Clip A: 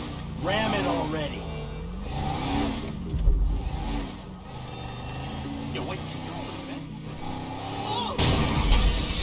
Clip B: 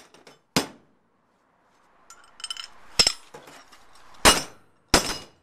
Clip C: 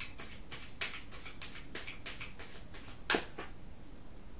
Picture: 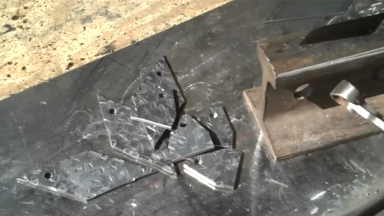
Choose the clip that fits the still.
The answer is B